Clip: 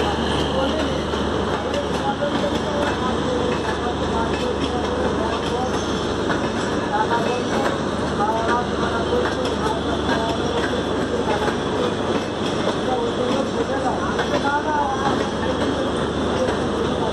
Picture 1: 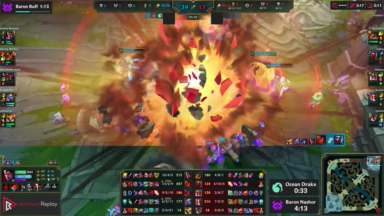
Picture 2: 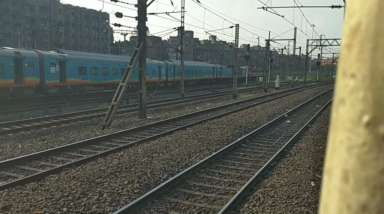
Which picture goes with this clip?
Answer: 2